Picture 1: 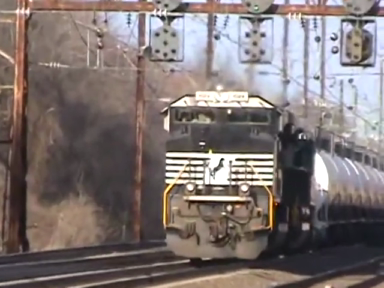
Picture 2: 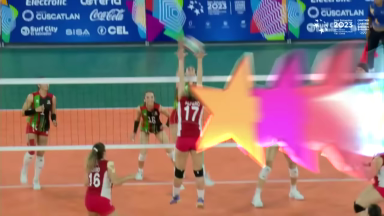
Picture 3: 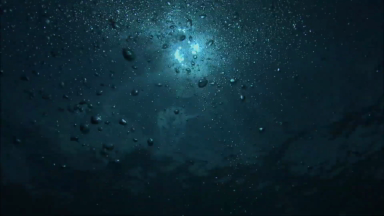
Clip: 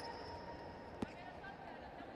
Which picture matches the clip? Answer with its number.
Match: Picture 2